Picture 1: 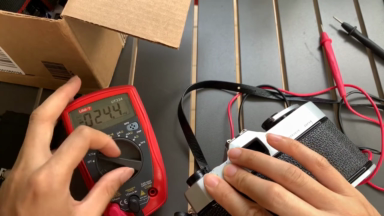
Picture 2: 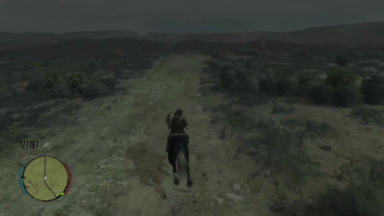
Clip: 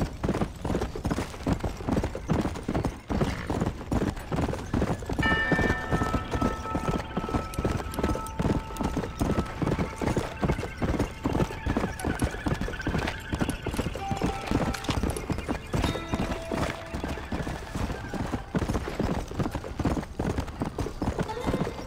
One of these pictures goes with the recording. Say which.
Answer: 2